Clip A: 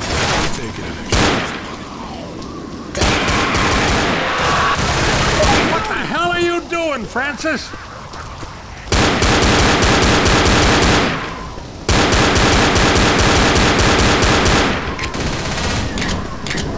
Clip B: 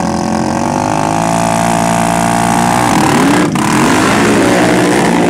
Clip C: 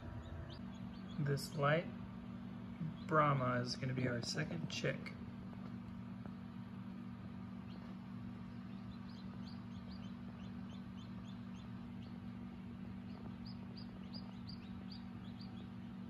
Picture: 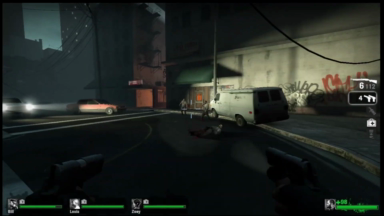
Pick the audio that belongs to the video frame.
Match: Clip A